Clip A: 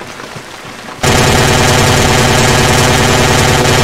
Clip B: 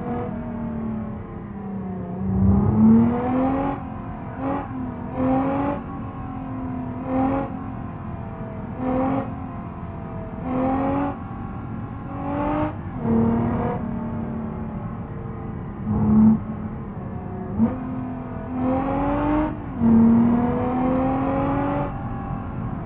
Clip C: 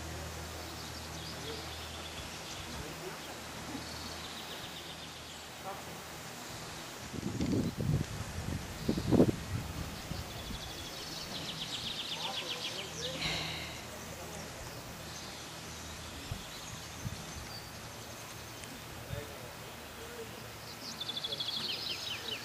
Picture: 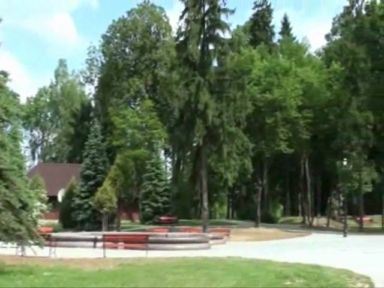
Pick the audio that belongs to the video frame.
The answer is C